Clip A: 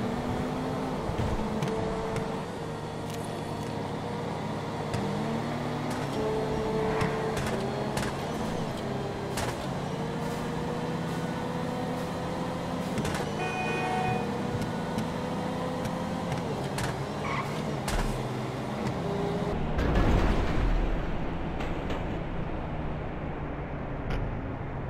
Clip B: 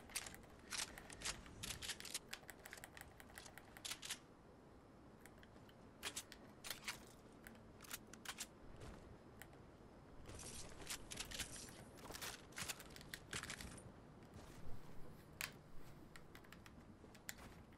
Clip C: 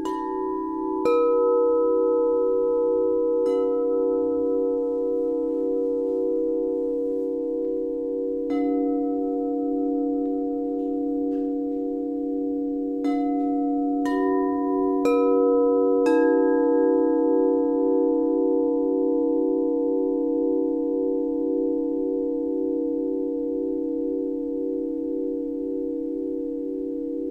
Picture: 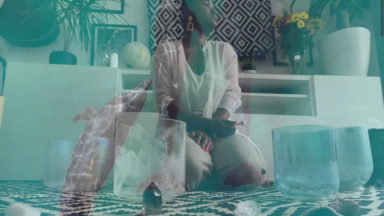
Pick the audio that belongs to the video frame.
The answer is C